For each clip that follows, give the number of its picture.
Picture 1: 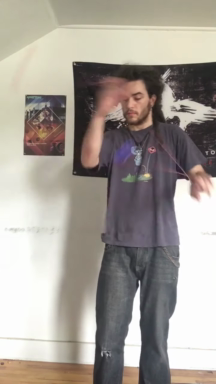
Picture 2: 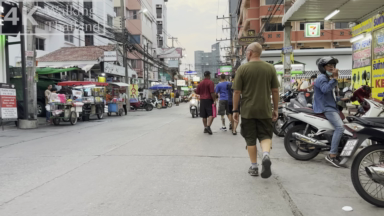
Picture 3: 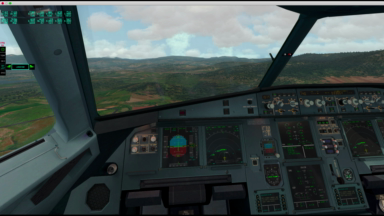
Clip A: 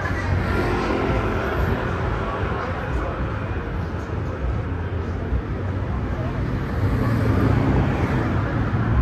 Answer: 2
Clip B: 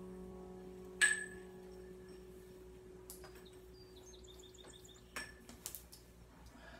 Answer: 1